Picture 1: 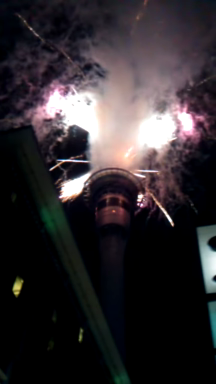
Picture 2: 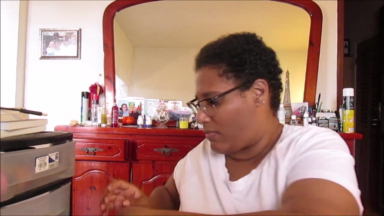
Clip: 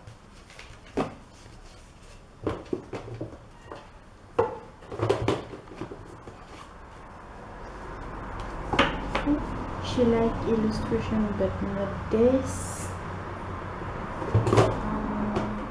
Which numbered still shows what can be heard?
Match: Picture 2